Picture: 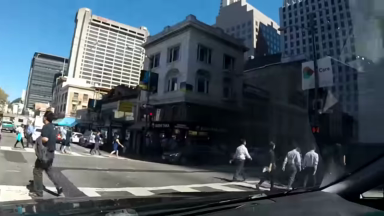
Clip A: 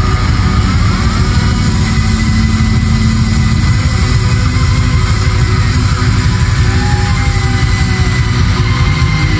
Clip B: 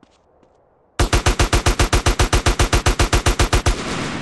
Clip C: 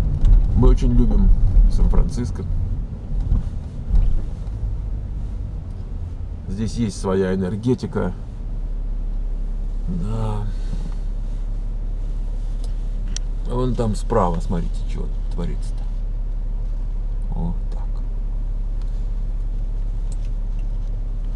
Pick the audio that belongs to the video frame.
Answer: C